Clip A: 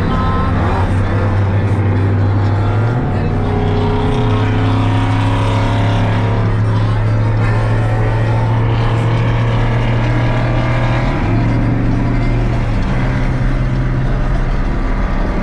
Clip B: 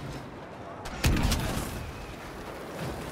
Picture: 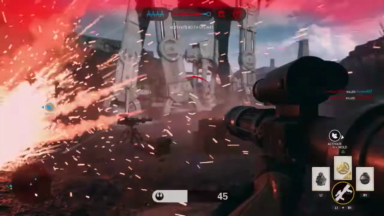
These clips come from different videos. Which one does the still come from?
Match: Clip B